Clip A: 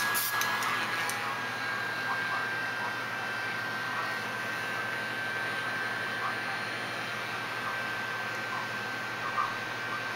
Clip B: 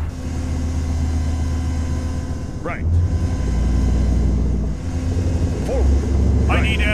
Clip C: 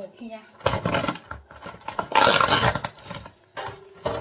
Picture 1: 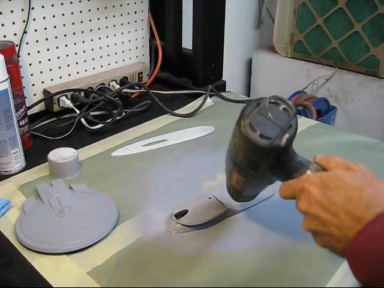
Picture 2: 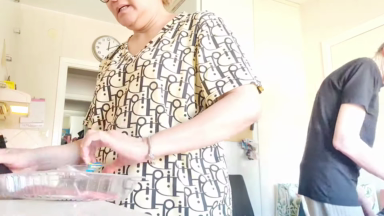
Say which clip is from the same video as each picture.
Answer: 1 A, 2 C